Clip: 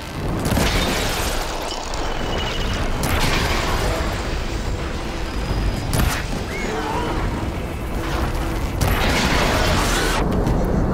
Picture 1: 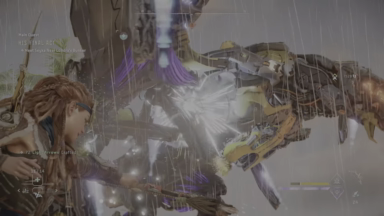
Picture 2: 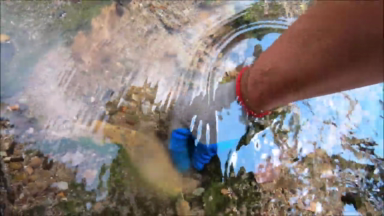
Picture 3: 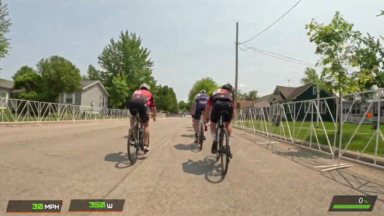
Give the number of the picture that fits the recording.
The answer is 1